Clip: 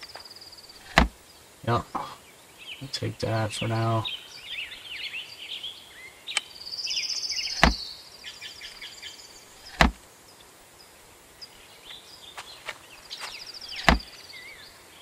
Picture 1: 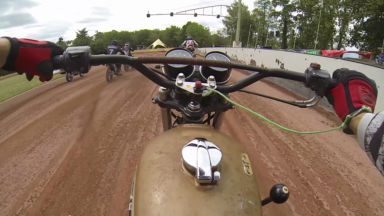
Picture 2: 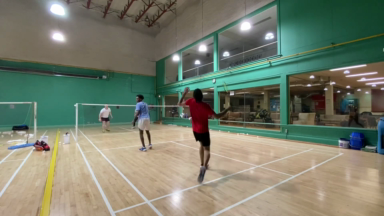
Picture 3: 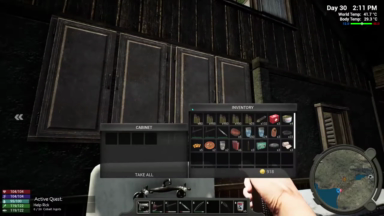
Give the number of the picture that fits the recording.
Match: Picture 3